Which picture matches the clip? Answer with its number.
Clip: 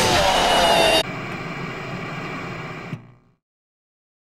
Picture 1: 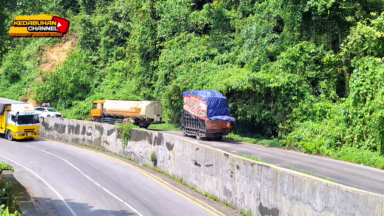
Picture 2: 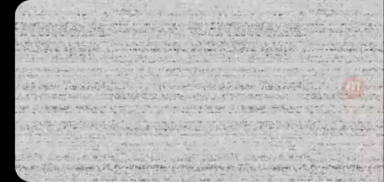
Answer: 2